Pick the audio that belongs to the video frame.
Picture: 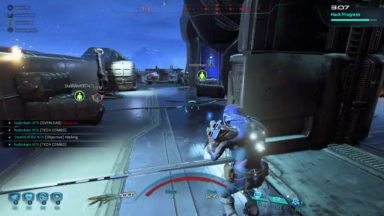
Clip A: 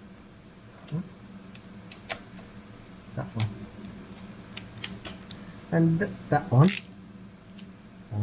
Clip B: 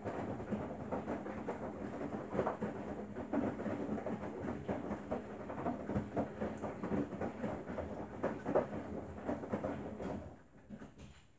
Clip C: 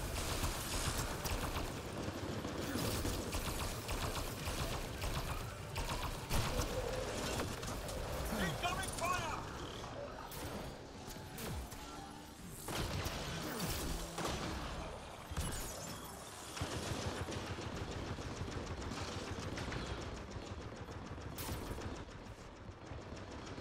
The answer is C